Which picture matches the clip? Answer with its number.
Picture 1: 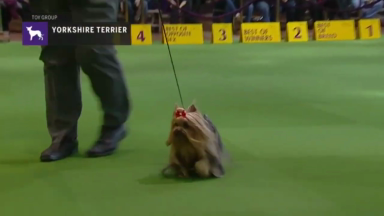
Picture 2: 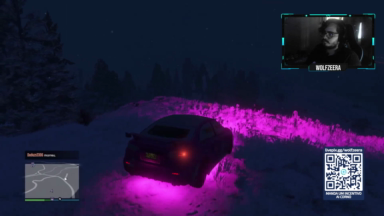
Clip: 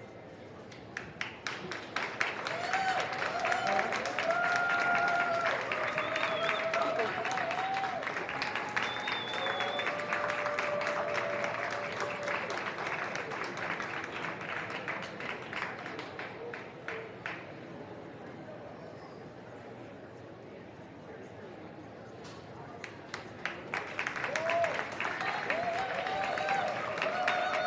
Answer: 1